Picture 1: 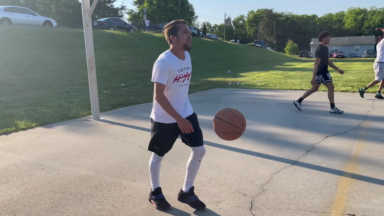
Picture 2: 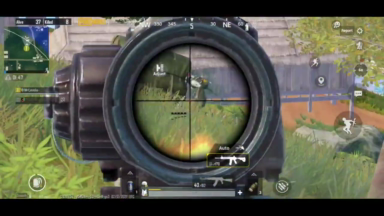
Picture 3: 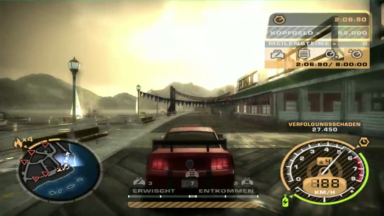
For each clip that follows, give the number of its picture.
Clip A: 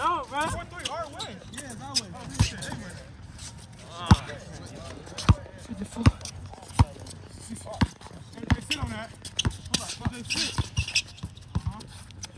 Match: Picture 1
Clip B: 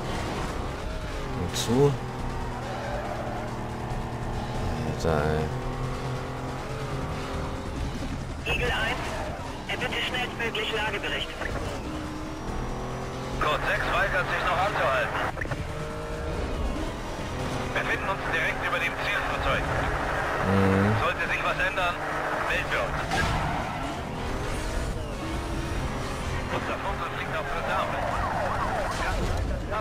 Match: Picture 3